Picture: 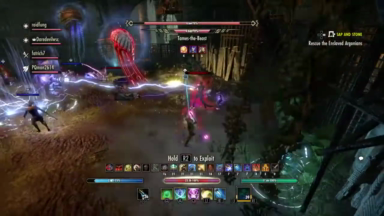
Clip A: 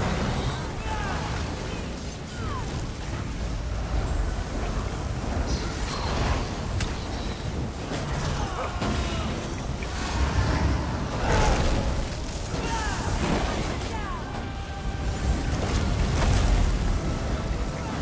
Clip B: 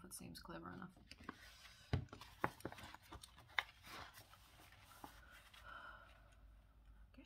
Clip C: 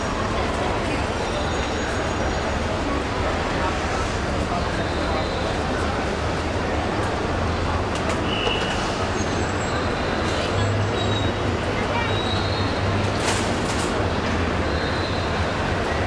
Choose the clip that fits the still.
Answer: A